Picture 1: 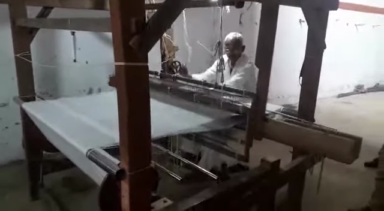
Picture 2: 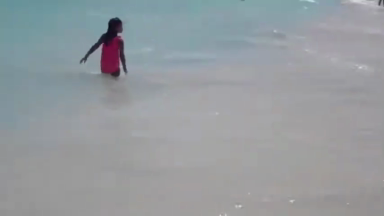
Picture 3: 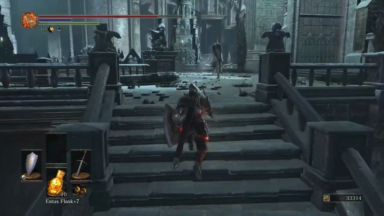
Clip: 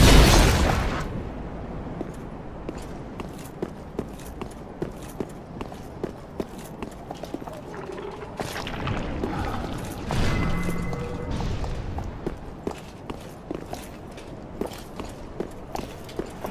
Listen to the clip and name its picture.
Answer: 3